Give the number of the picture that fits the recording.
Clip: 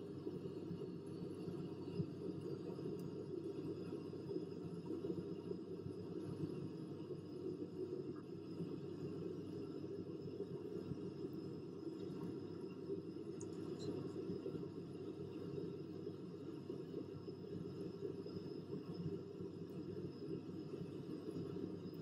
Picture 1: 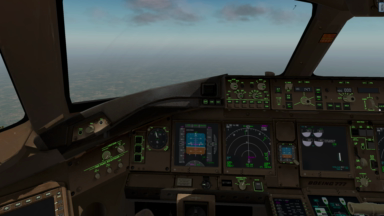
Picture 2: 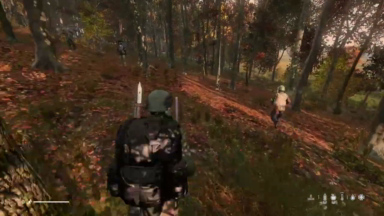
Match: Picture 1